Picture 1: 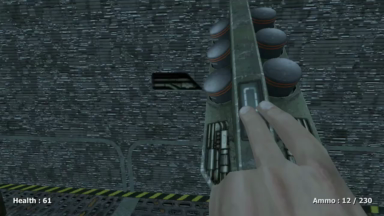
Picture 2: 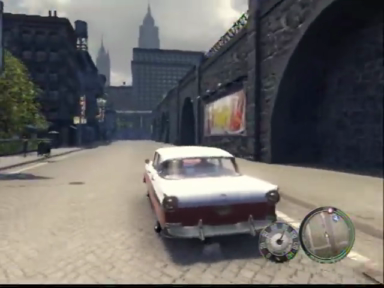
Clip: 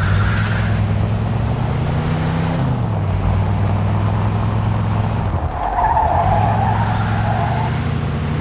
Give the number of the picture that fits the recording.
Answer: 2